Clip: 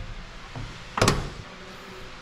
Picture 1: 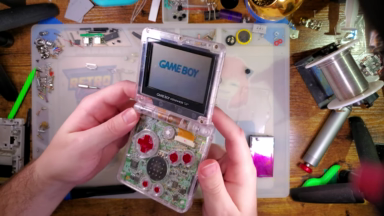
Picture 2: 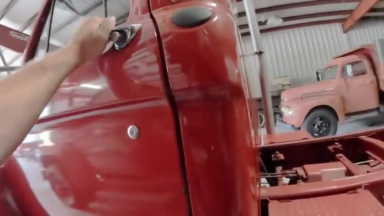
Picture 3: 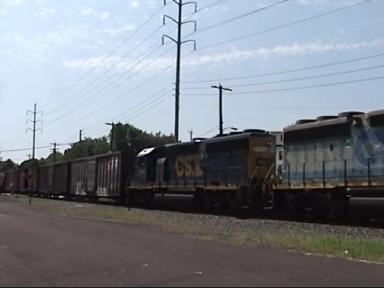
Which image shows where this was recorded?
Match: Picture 2